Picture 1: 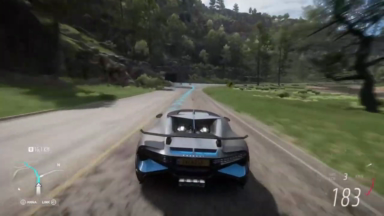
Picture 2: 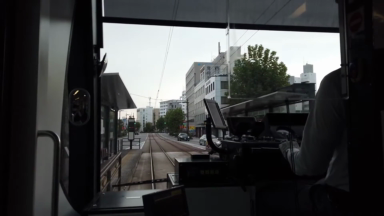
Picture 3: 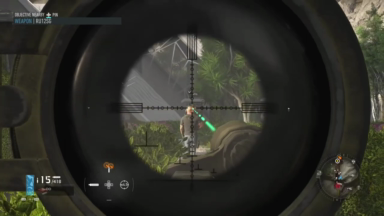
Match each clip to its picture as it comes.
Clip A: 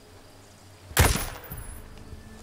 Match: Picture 3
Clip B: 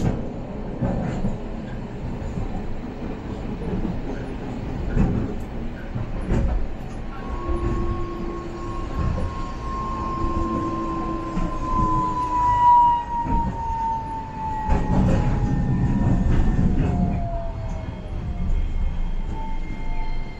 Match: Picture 2